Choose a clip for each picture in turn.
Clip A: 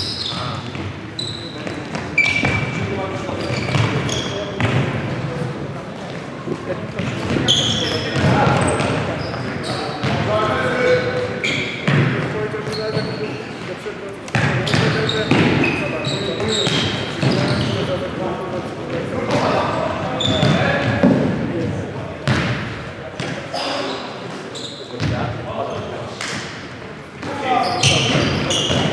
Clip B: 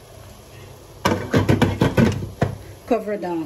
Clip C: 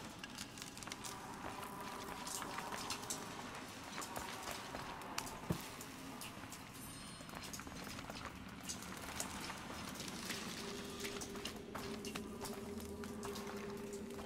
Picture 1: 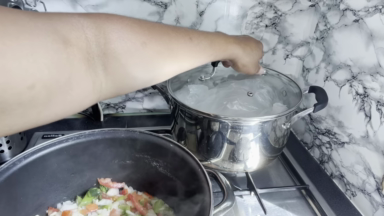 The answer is B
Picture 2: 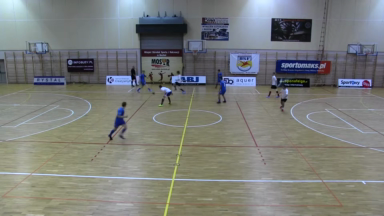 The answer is A